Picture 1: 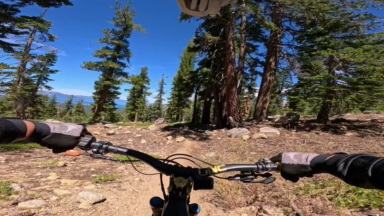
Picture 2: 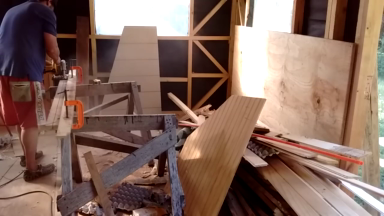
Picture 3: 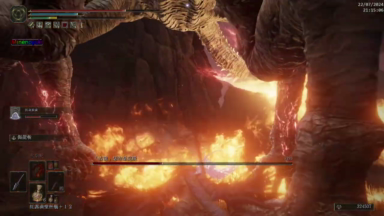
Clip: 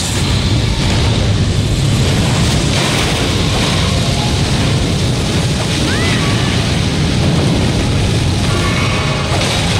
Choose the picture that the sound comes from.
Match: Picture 3